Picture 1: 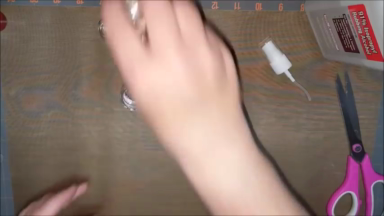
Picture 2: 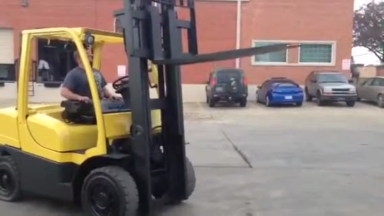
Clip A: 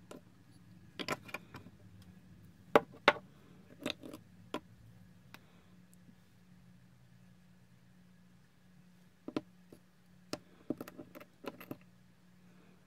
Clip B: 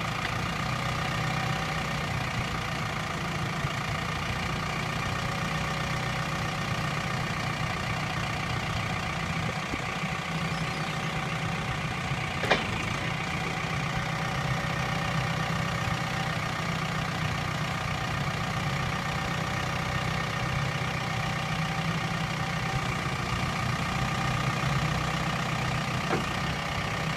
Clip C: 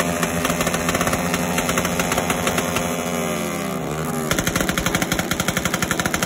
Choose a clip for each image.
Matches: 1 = A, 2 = B